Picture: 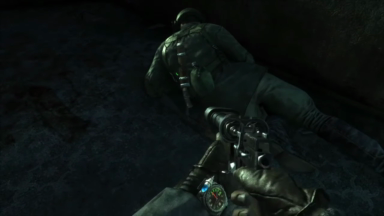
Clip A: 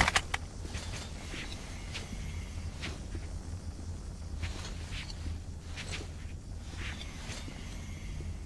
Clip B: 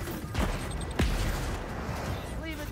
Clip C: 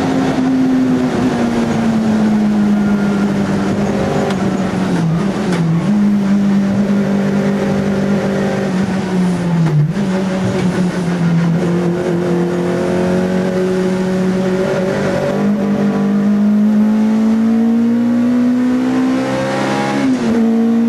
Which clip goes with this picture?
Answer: A